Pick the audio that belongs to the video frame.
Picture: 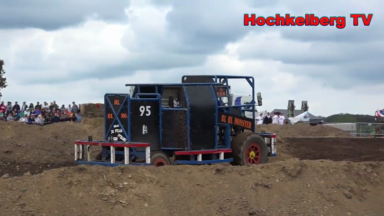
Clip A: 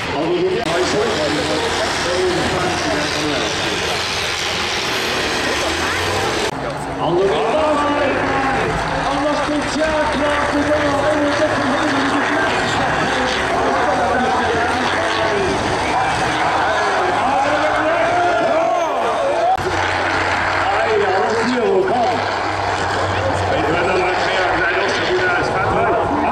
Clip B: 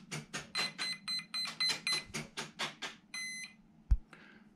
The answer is A